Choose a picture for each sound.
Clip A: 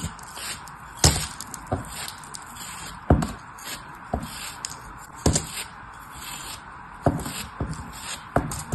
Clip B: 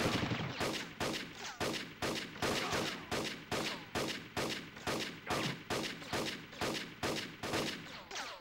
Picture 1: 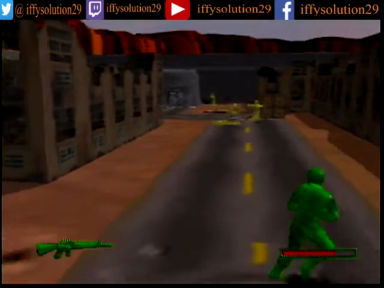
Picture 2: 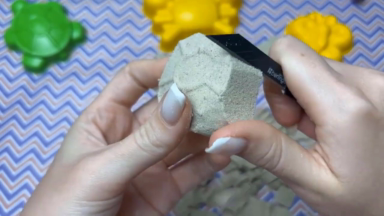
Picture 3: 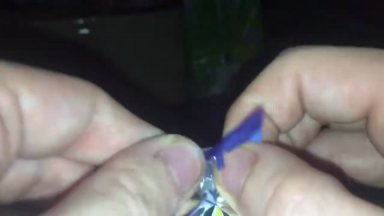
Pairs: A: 2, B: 1